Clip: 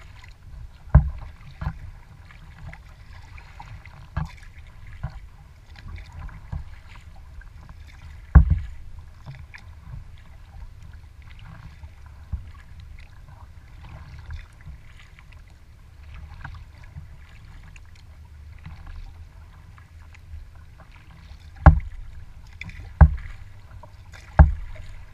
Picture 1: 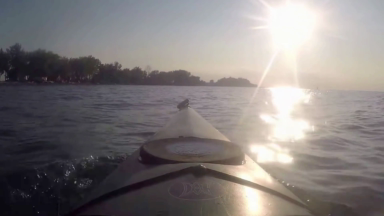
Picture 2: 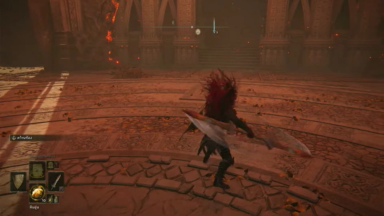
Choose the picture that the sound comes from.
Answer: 1